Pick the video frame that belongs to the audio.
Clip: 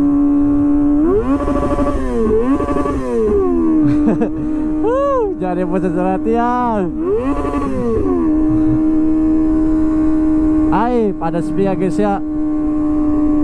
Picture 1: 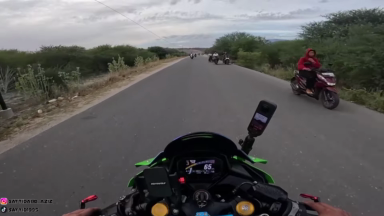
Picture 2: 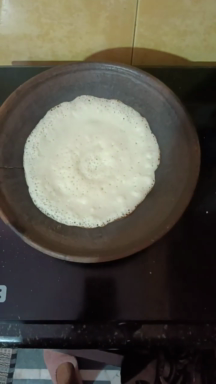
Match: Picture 1